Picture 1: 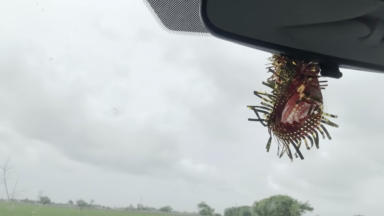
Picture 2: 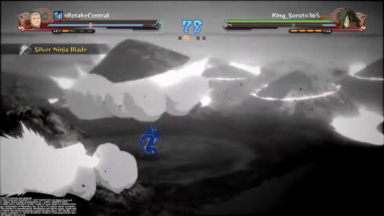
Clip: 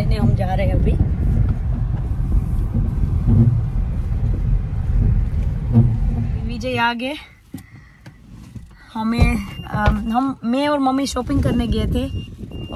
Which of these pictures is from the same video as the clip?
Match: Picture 1